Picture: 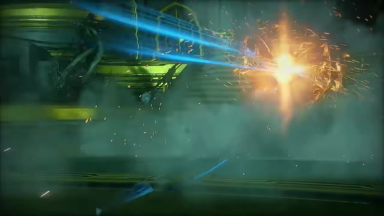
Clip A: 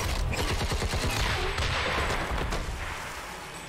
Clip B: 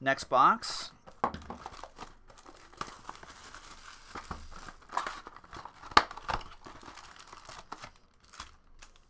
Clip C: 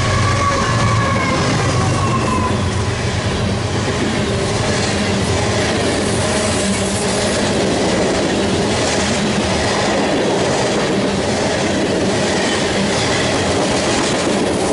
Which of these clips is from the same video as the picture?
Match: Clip A